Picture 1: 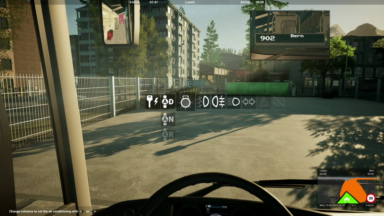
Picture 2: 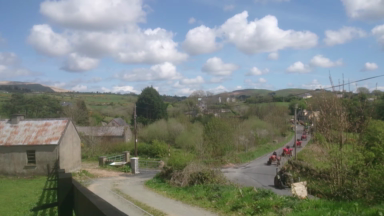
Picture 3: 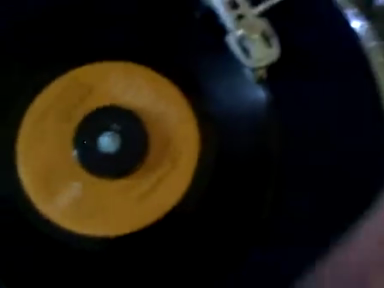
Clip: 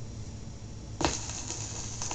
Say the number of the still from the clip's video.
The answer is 3